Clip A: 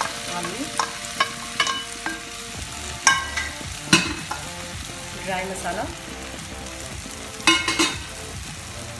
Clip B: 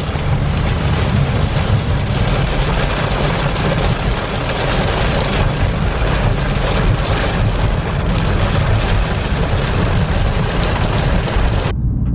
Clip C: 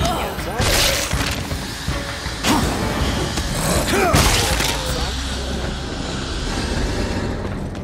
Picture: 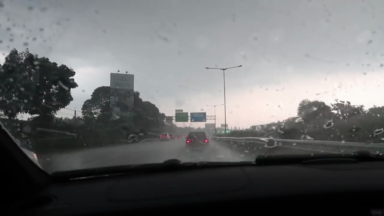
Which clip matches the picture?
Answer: B